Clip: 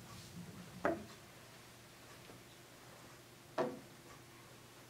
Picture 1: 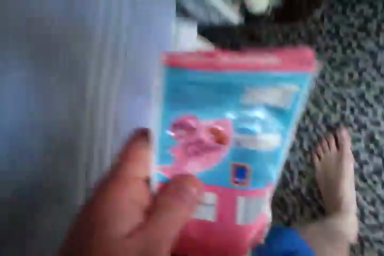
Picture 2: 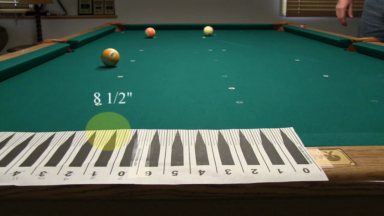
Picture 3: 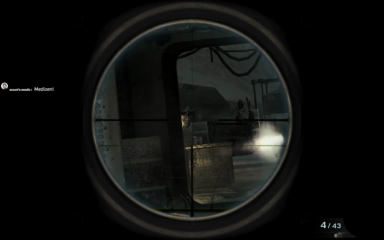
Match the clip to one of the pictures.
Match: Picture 2